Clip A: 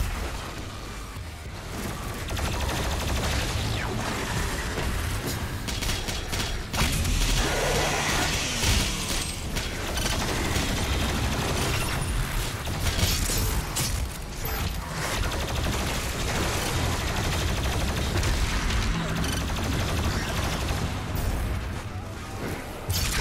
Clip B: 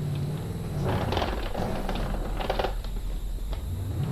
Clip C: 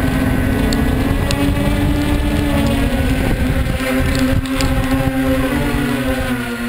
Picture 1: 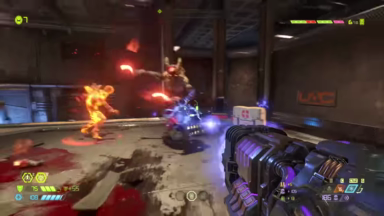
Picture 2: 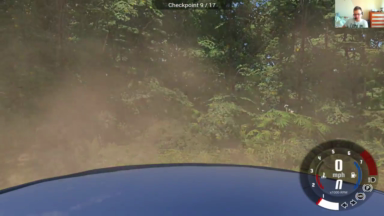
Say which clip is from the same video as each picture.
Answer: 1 A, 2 B